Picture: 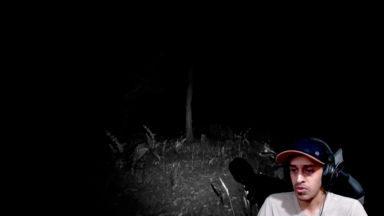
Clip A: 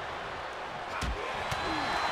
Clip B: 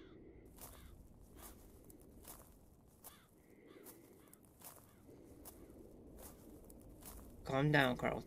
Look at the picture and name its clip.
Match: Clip B